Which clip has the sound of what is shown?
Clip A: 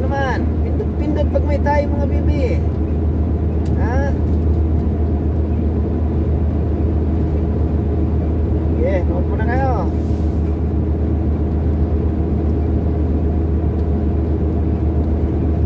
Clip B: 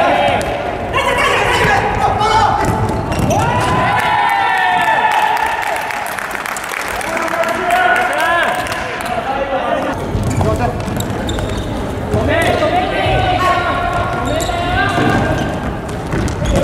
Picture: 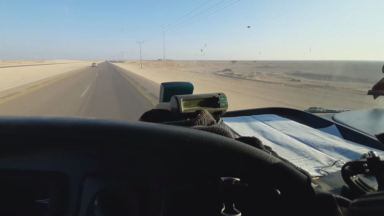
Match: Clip A